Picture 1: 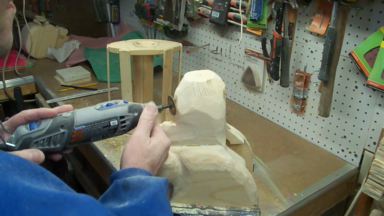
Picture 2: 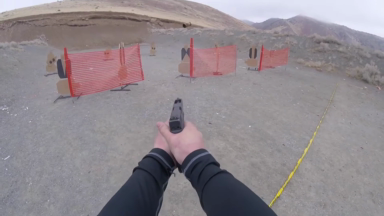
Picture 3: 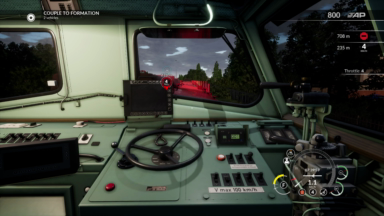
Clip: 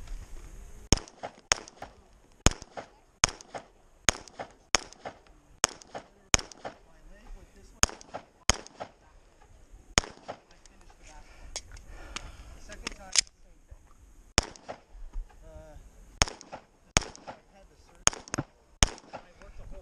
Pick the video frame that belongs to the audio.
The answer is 2